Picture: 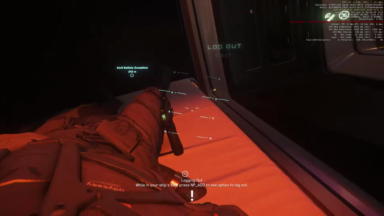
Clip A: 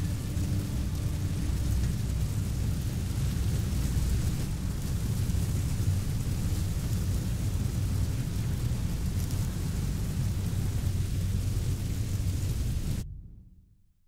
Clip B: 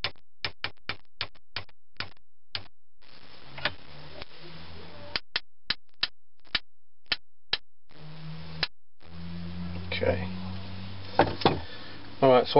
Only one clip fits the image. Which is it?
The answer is A